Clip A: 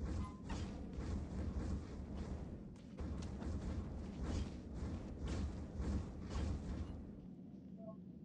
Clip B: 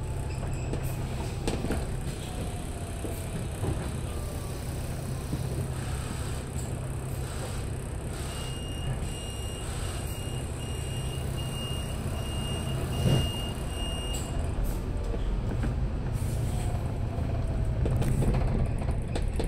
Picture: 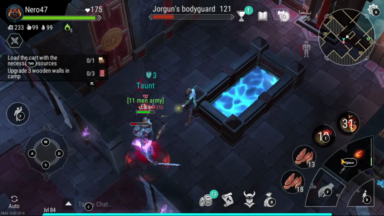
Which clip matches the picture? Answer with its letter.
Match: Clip A